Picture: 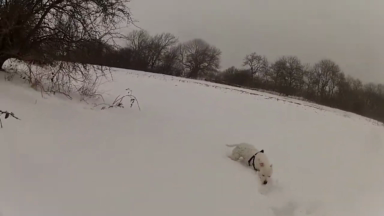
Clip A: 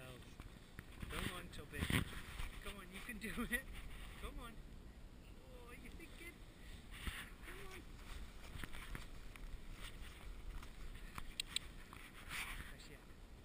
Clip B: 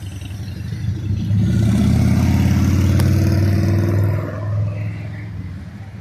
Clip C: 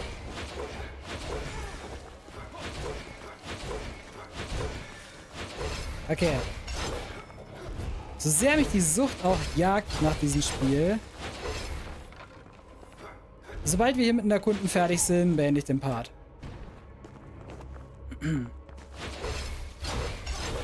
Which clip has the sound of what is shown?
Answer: A